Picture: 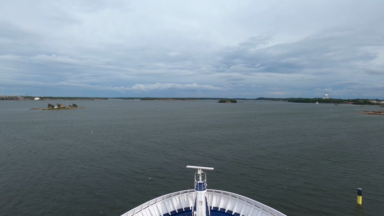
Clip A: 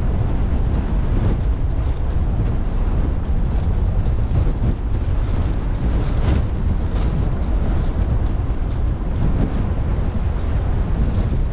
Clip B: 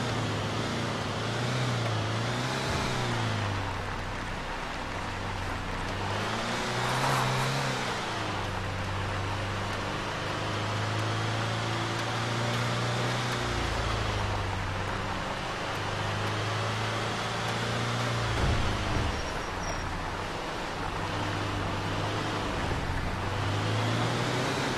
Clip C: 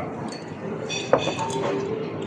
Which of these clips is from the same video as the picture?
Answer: A